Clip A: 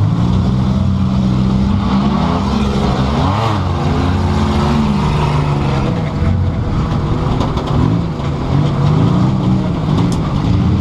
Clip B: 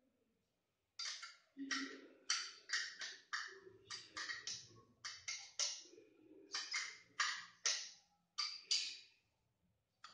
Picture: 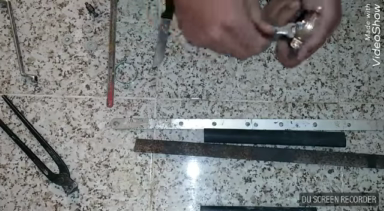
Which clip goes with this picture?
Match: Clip B